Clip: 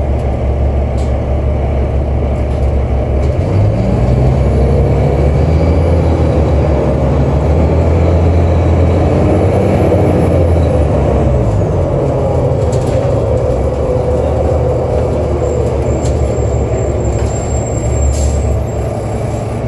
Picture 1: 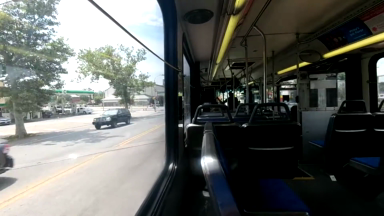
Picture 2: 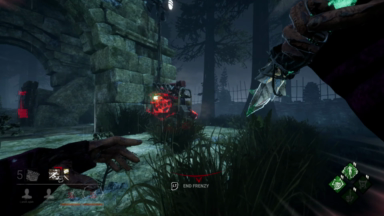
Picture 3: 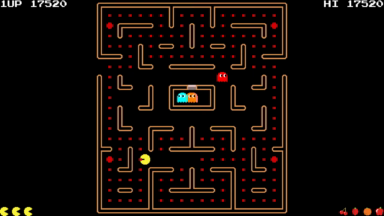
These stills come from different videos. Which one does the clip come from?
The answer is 1